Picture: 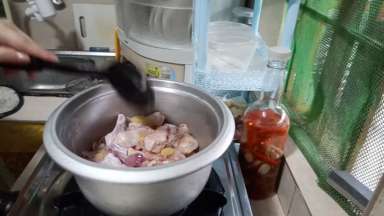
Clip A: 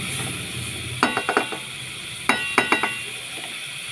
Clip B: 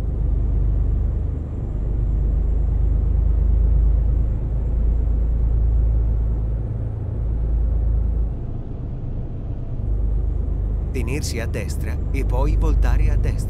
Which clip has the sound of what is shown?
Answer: A